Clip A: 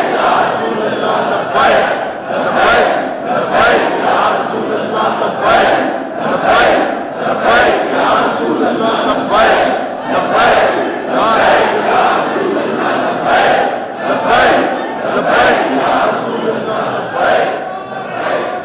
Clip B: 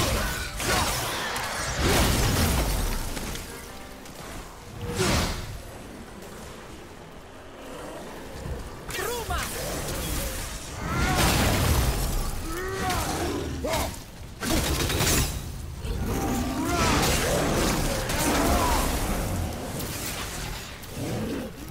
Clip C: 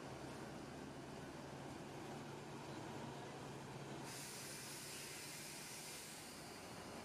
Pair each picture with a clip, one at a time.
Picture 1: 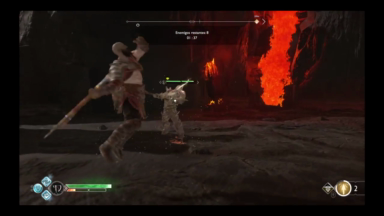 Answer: B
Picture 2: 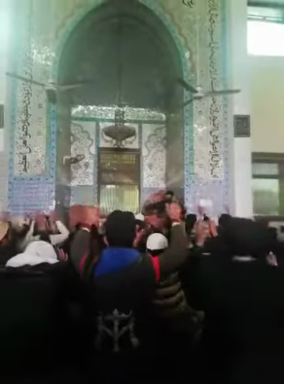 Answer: A